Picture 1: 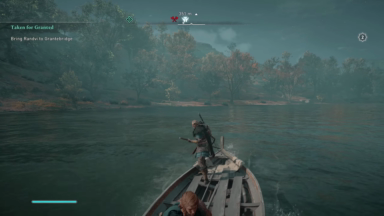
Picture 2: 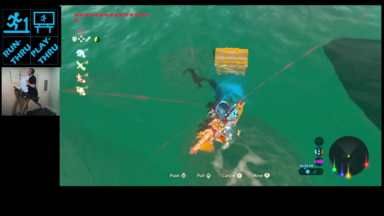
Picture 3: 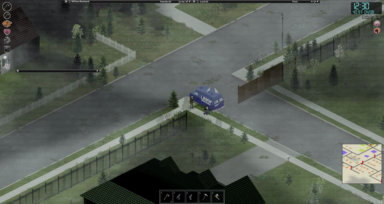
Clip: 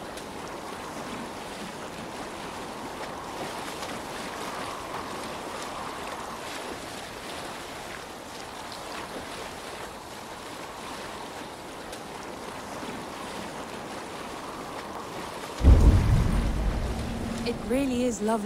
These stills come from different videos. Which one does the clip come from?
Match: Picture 1